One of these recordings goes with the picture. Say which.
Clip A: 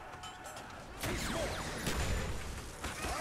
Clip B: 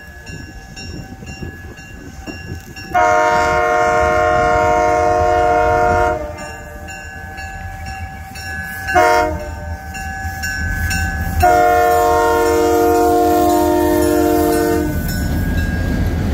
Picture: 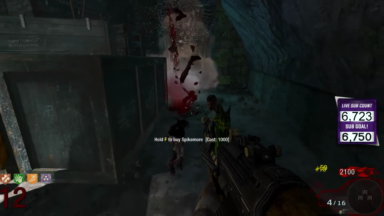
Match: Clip A